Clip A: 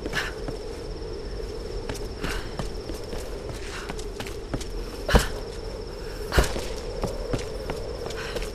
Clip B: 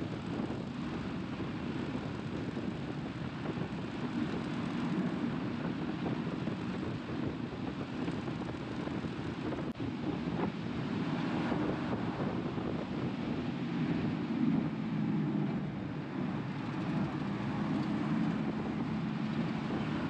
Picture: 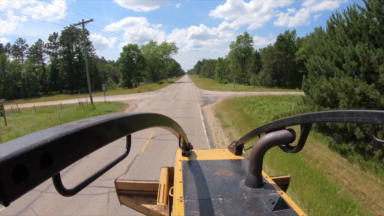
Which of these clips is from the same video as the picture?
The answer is B